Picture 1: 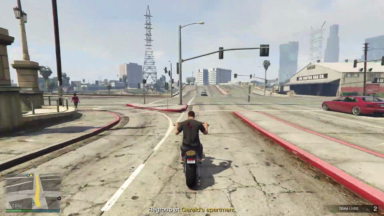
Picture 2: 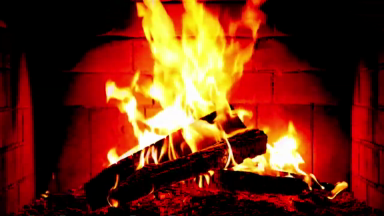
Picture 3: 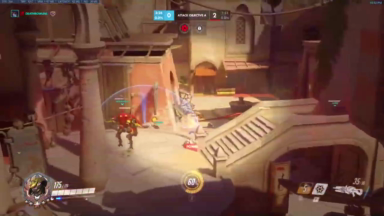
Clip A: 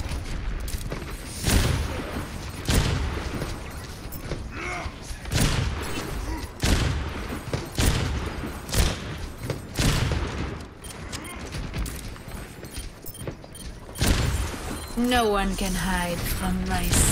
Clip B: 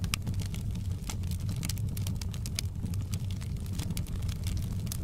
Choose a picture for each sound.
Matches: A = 3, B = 2